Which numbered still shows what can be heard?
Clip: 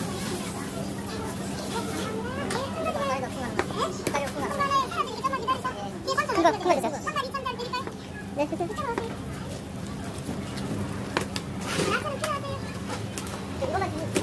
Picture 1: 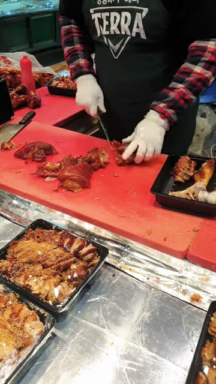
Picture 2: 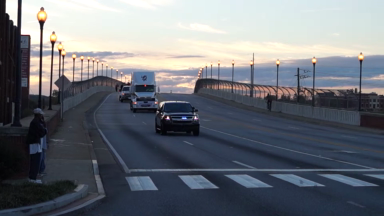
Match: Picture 1